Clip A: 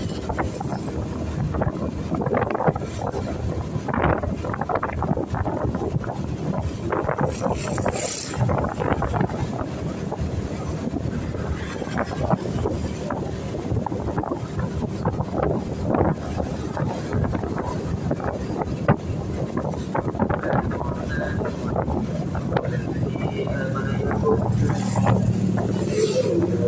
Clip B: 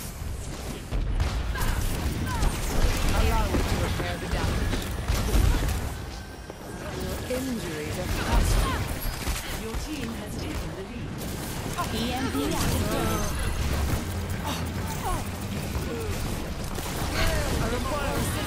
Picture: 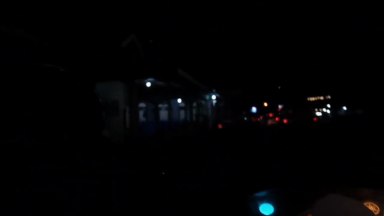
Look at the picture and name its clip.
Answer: A